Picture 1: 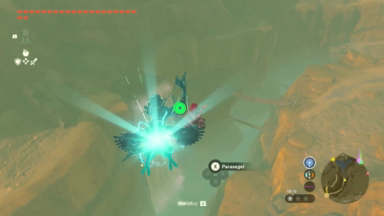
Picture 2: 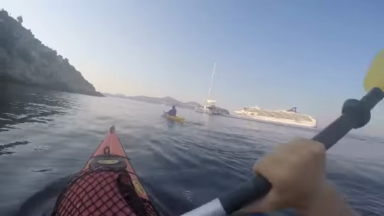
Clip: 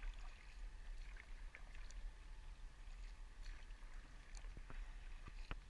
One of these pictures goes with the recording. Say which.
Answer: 2